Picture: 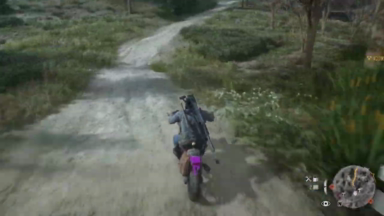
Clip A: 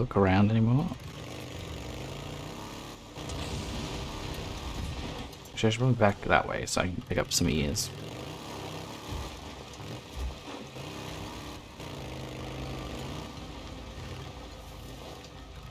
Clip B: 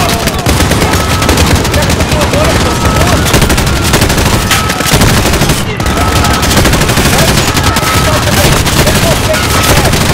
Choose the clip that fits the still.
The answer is A